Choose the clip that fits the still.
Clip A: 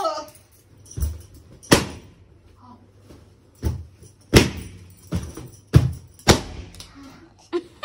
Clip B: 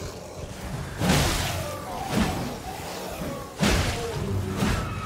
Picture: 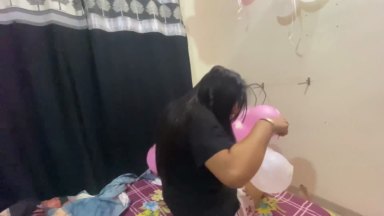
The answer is A